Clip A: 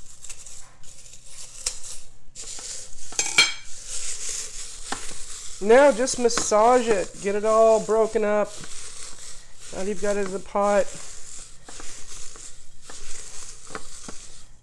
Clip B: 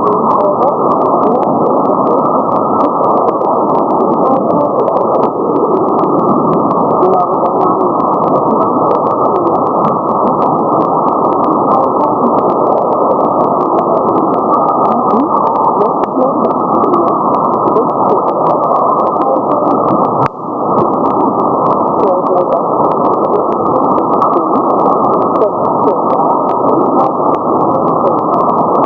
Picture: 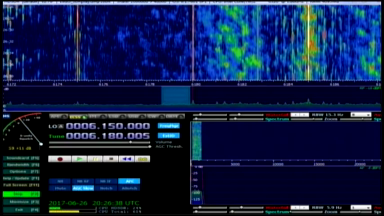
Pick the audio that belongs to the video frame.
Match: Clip B